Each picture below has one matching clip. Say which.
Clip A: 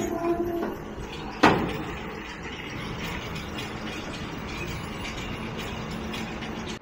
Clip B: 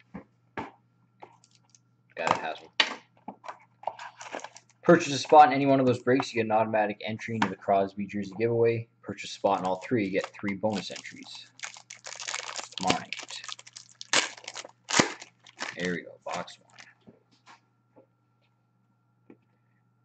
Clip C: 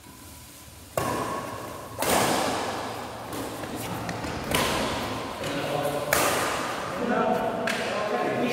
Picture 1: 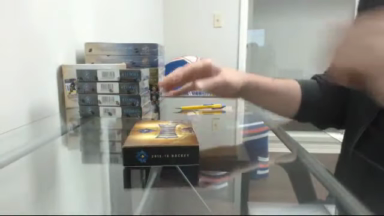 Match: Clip B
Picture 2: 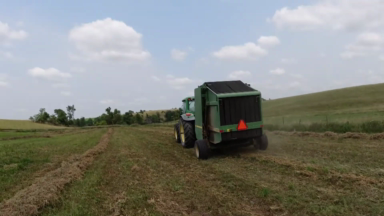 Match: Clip A